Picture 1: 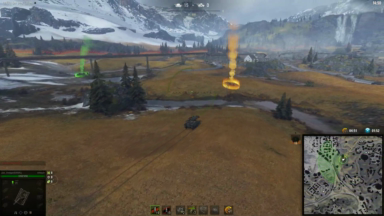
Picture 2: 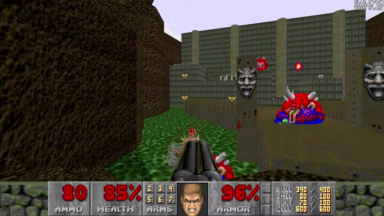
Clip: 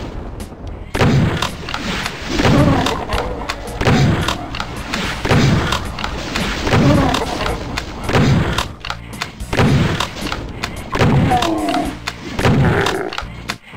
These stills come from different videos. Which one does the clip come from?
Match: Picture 2